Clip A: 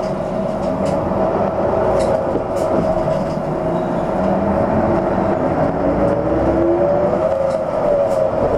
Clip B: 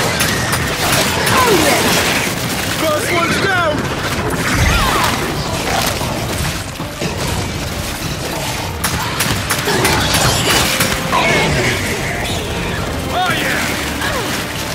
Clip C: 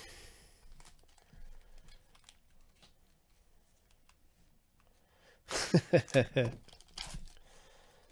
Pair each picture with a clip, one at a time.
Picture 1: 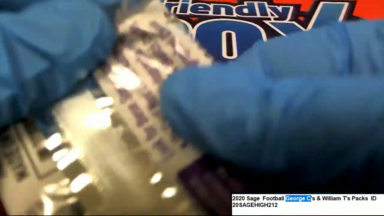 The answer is C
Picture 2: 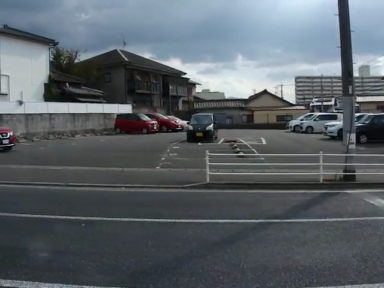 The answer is A